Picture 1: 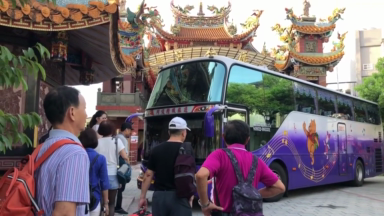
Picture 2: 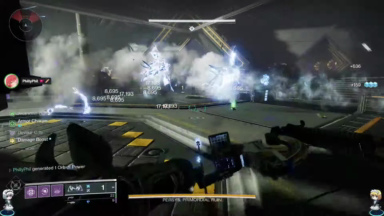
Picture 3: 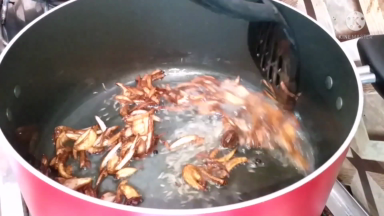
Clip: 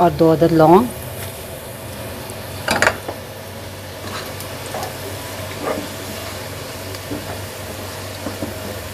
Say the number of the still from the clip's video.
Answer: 3